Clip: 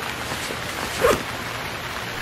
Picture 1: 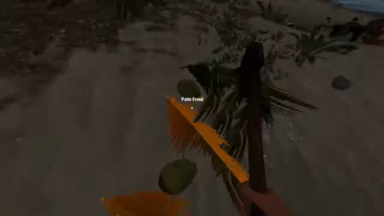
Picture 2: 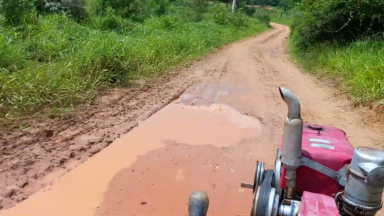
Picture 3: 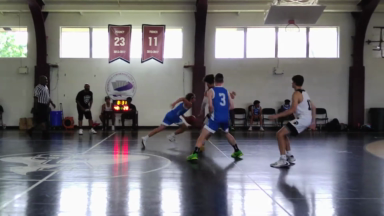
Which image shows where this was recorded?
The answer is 1